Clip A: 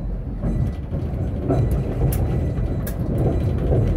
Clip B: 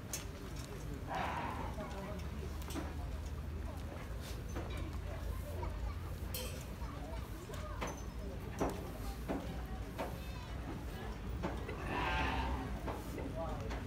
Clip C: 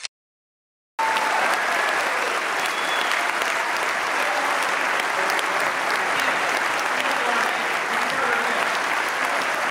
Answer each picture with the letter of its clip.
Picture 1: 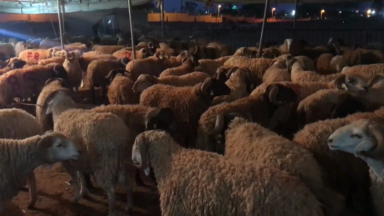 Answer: B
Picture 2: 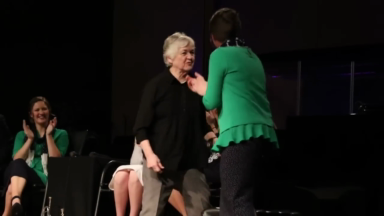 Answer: C